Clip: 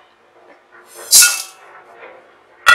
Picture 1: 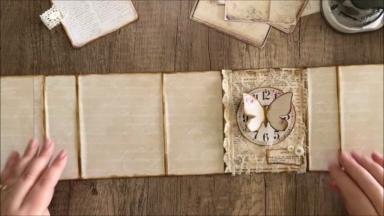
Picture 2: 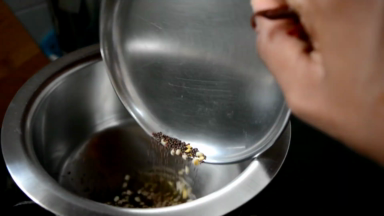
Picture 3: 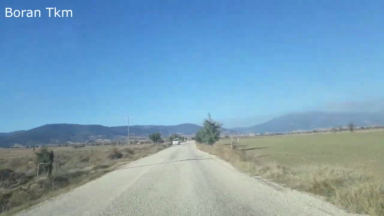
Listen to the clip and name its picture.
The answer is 2